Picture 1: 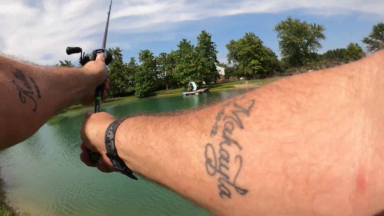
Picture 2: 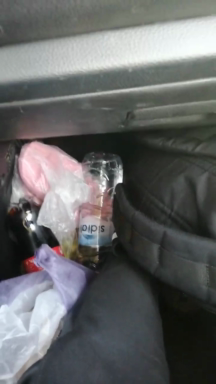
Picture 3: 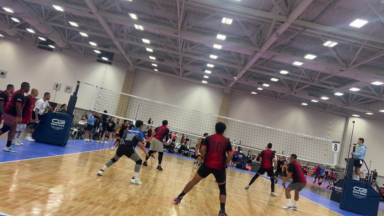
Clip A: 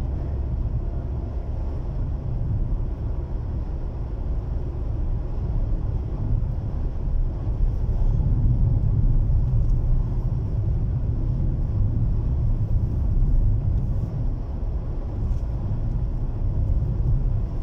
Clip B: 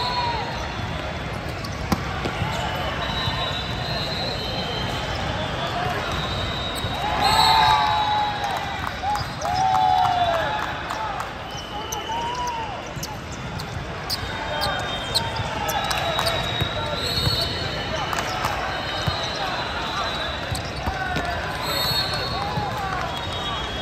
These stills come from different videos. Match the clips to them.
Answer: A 2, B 3